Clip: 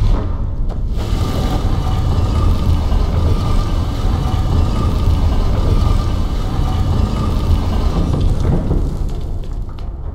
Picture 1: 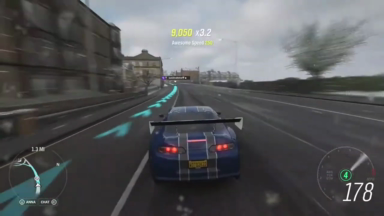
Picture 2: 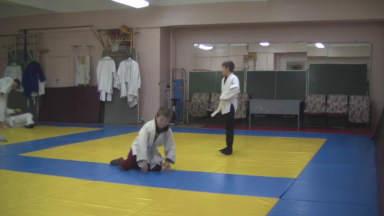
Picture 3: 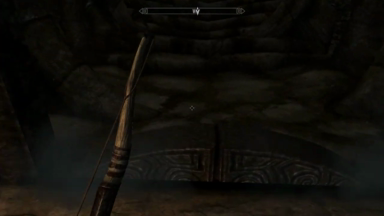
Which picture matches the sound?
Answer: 3